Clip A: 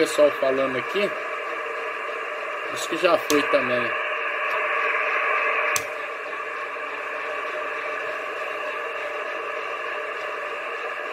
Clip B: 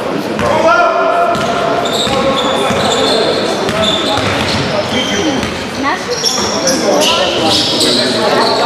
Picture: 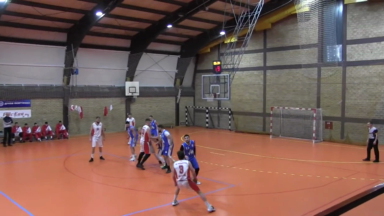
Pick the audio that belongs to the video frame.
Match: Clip B